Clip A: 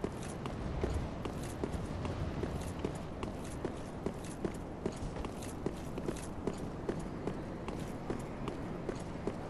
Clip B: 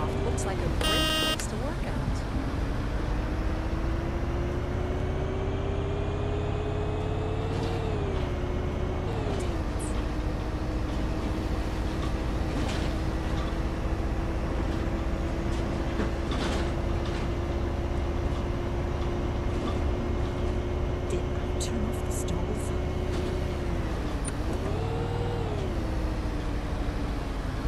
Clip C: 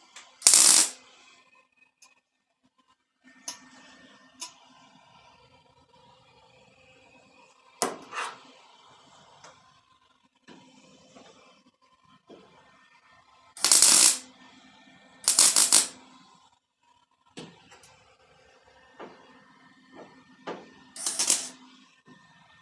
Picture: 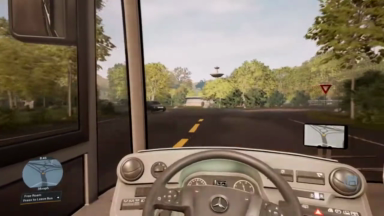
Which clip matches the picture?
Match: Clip B